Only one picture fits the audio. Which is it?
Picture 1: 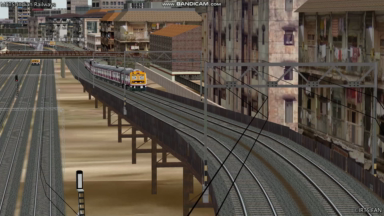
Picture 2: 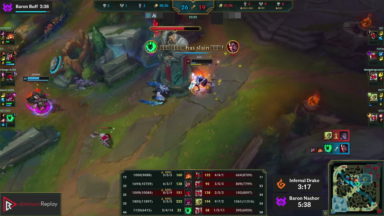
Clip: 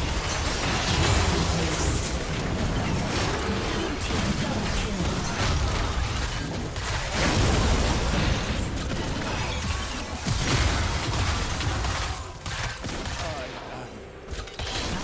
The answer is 2